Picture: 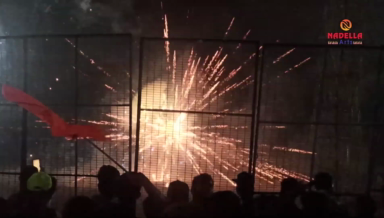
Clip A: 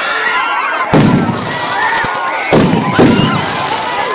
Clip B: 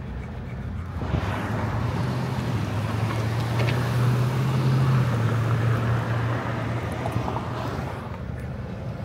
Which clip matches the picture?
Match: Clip A